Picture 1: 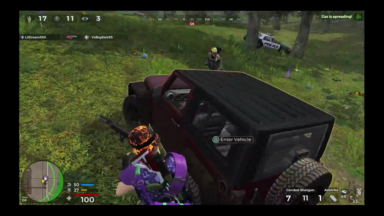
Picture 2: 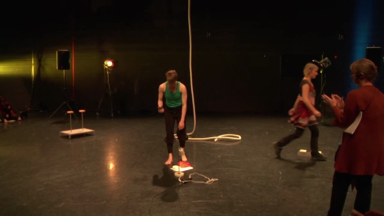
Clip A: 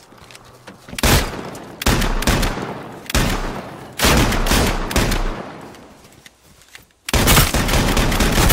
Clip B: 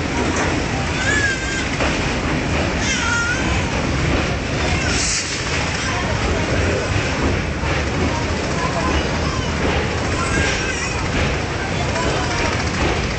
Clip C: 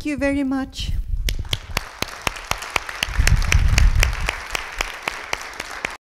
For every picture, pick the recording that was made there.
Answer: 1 A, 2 C